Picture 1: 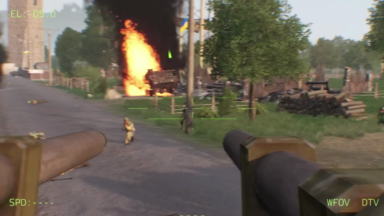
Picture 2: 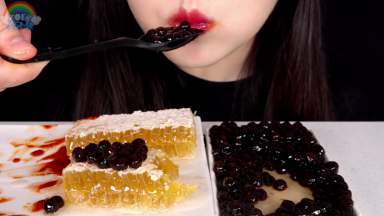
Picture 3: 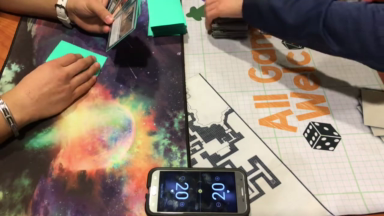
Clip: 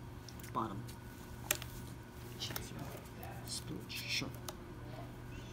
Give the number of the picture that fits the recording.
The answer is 3